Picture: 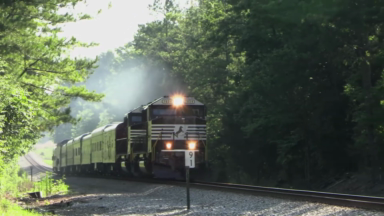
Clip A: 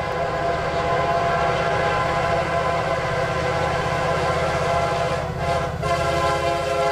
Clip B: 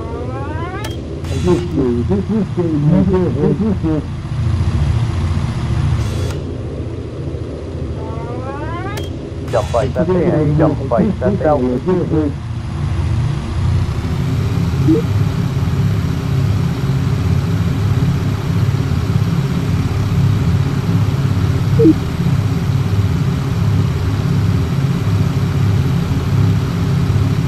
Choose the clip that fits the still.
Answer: A